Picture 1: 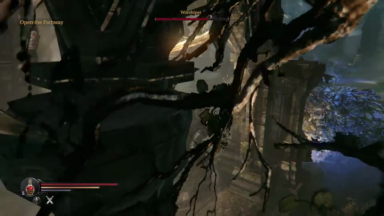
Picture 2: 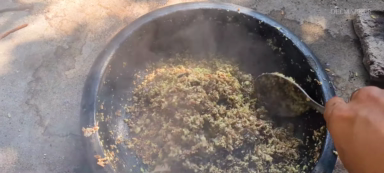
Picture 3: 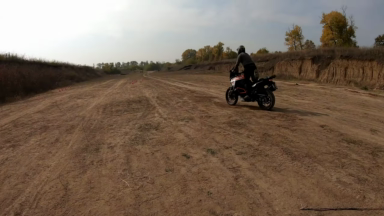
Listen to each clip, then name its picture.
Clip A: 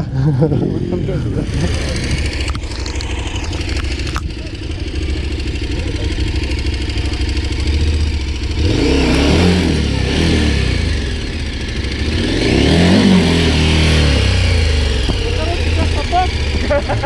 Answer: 3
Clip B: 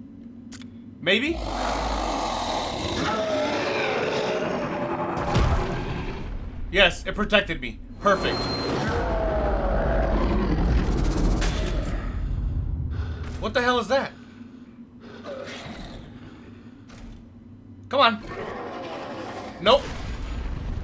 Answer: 1